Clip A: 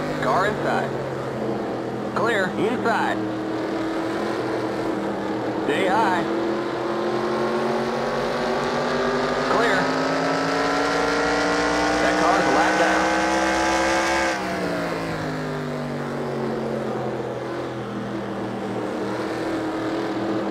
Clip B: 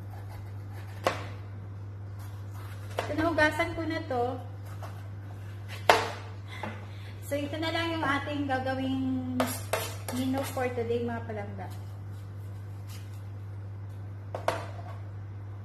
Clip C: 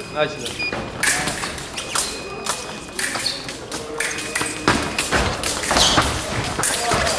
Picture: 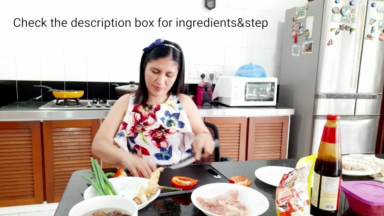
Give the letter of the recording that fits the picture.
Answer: B